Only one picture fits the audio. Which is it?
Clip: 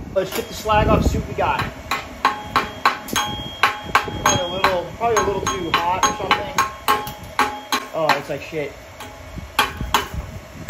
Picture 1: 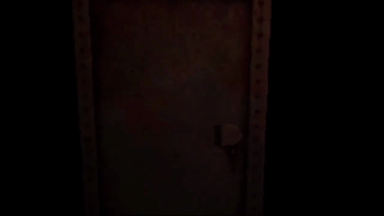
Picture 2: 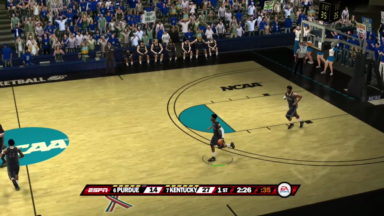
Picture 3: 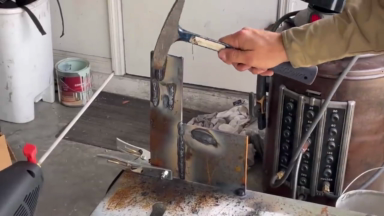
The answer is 3